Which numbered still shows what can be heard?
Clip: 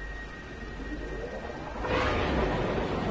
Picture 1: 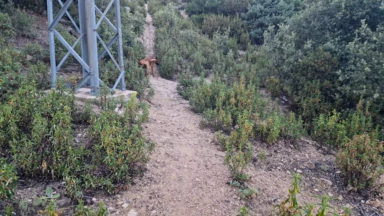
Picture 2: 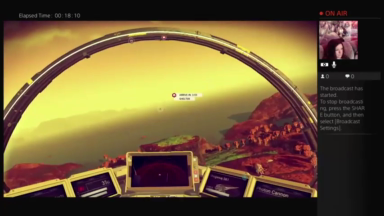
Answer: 2